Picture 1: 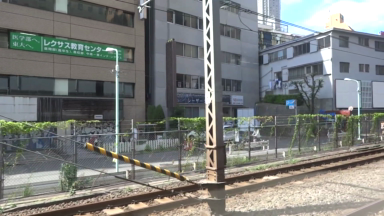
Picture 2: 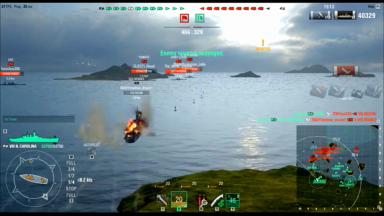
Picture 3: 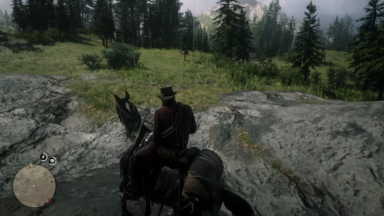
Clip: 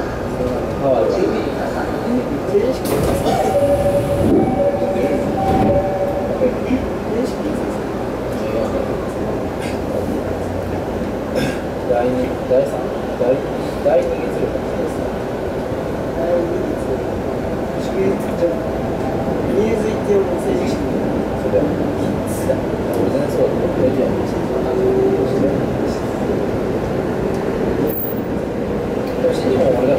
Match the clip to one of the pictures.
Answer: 1